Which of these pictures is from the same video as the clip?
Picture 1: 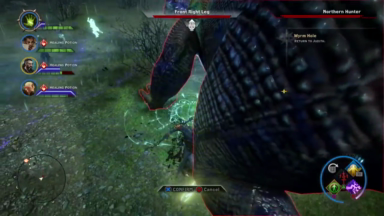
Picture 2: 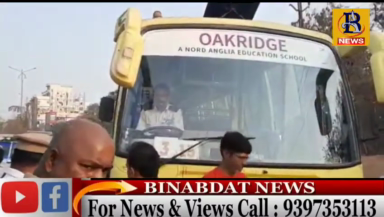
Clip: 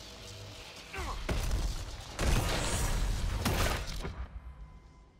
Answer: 1